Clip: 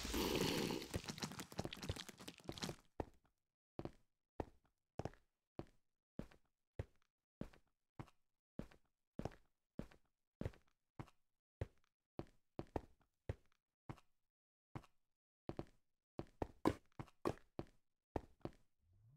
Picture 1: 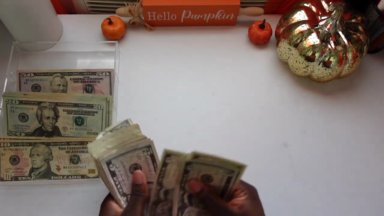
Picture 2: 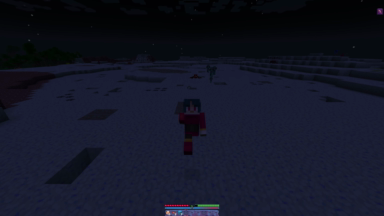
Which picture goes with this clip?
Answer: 2